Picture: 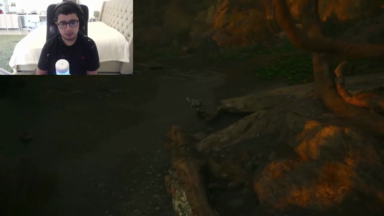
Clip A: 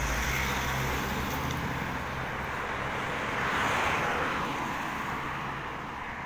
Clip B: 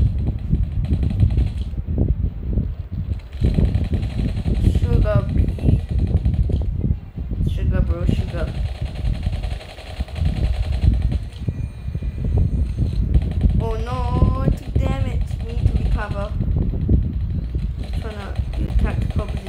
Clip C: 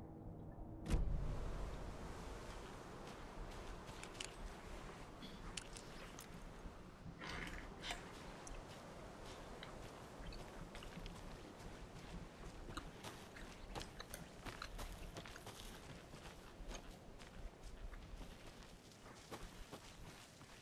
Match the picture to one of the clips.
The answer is C